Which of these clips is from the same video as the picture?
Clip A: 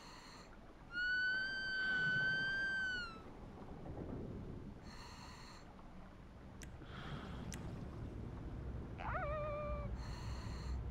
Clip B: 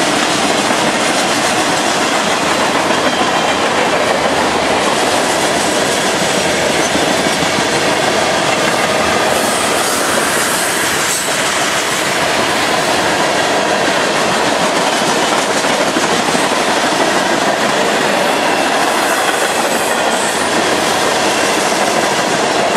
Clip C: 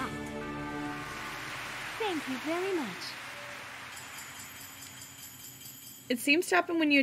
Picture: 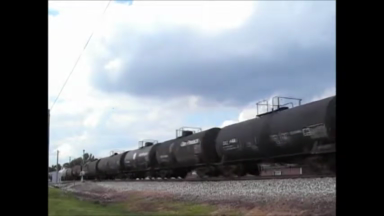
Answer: B